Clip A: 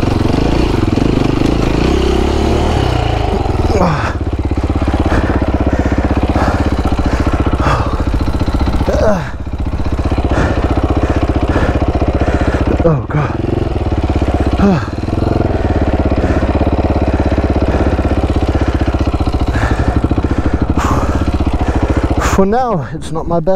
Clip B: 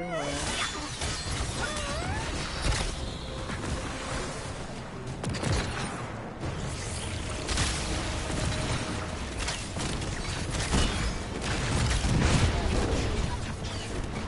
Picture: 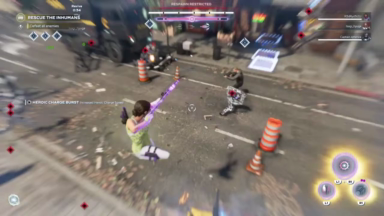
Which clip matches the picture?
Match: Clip B